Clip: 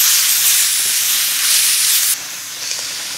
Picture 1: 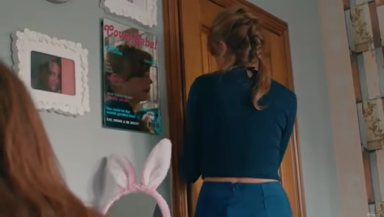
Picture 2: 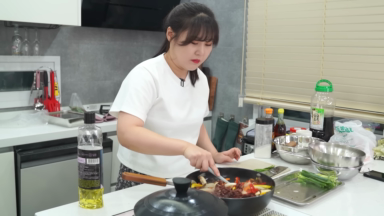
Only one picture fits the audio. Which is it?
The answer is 2